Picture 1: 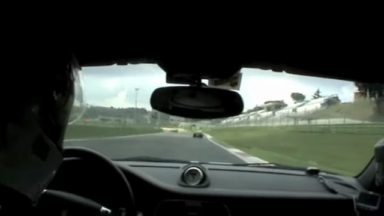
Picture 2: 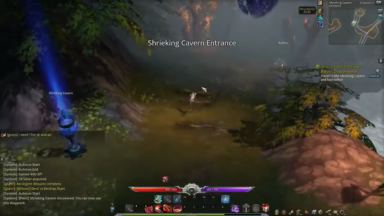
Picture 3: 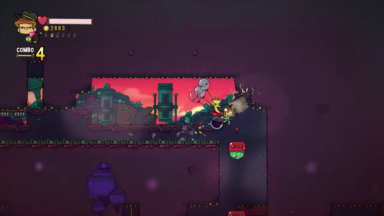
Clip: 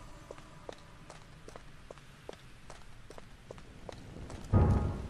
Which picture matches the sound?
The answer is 2